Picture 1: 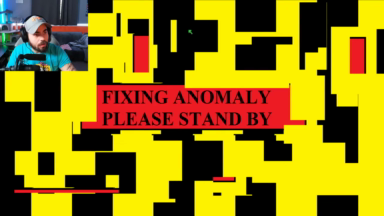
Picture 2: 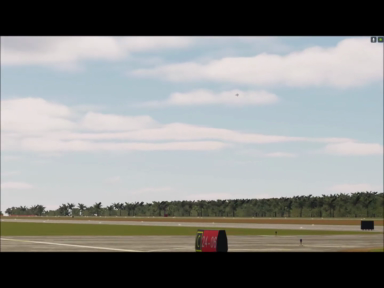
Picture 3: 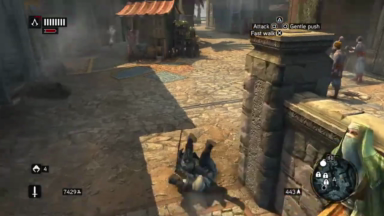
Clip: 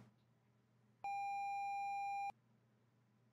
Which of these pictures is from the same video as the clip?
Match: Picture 1